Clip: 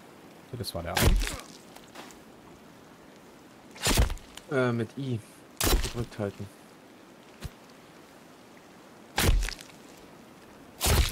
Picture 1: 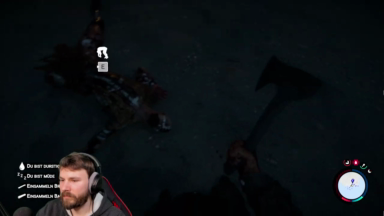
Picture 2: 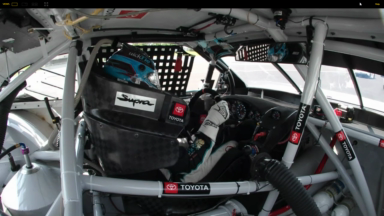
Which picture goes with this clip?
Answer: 1